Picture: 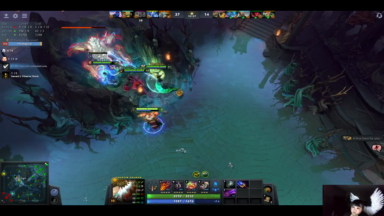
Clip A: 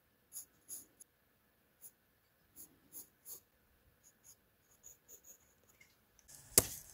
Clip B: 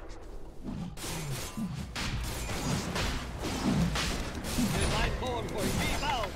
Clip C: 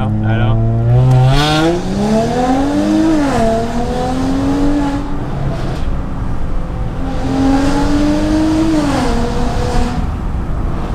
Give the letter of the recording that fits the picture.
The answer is B